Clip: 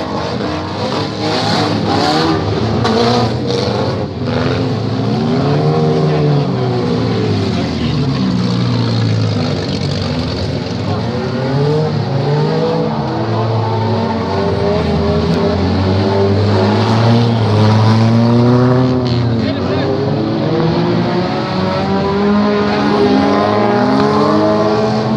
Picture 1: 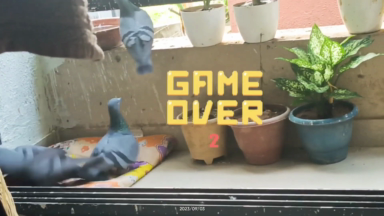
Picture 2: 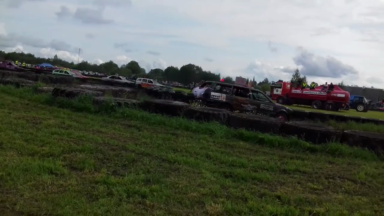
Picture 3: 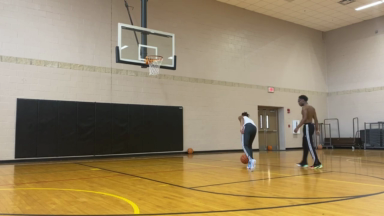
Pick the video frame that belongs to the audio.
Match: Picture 2